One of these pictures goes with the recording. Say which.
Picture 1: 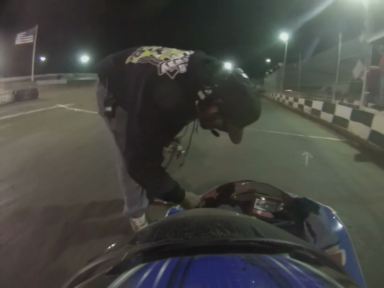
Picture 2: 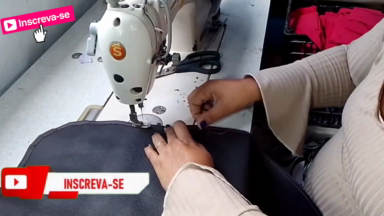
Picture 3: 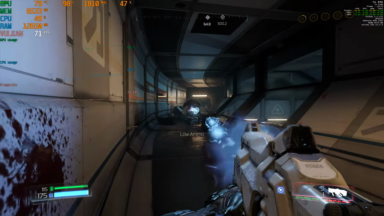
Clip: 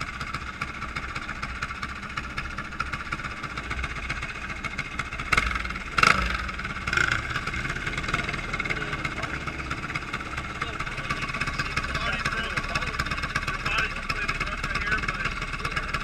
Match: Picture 1